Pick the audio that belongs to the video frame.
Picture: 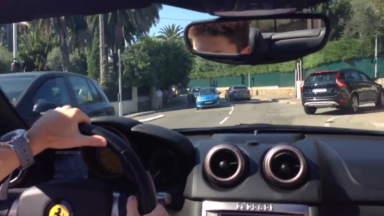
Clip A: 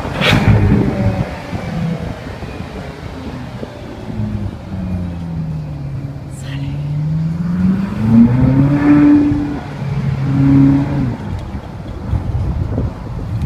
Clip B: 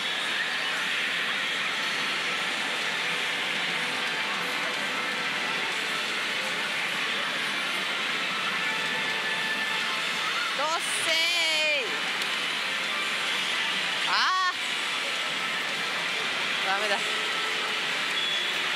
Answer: A